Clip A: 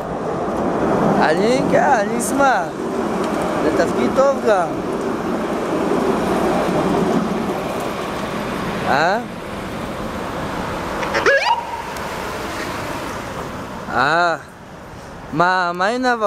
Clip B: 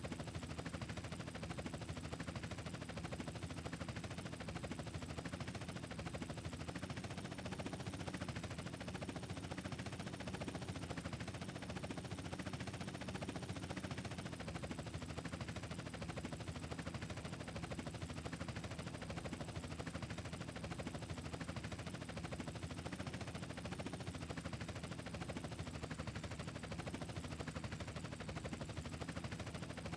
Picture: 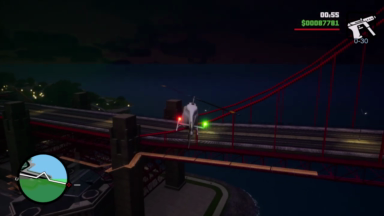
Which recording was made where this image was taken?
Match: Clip B